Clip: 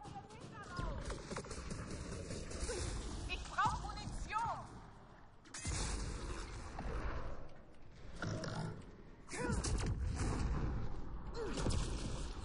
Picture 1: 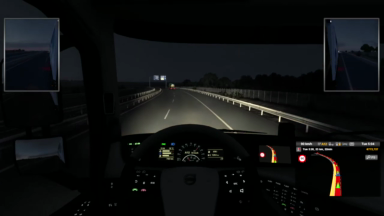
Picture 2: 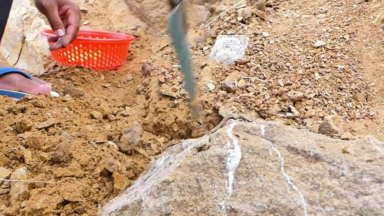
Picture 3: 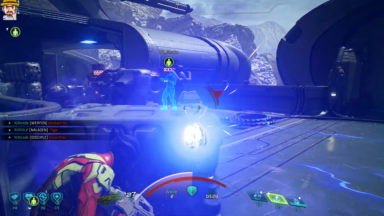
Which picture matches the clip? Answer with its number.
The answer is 3